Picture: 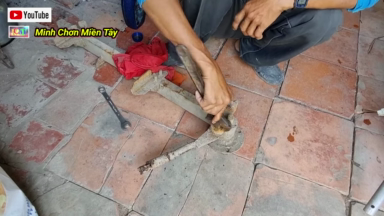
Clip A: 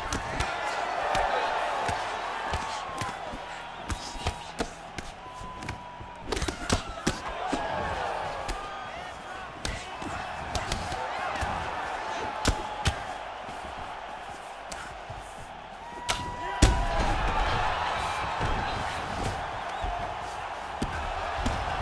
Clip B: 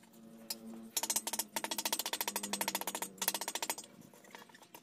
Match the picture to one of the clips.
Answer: B